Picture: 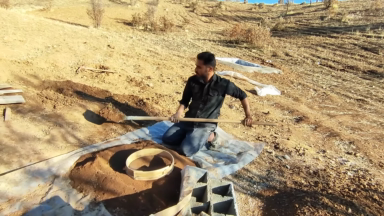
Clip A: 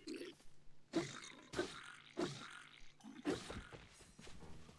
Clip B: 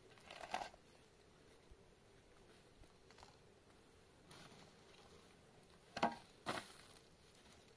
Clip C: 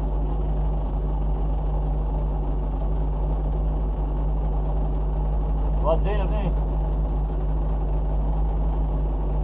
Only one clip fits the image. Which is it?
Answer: B